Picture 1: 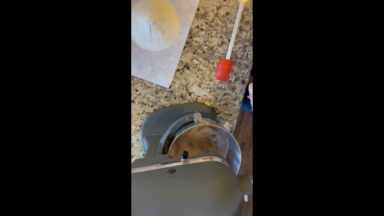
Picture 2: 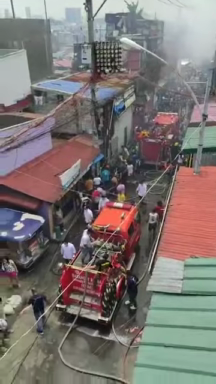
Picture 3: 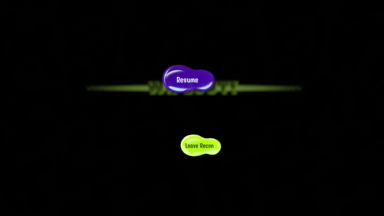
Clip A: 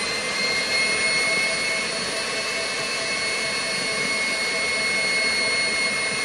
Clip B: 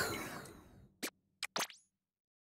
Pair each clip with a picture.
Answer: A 1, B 3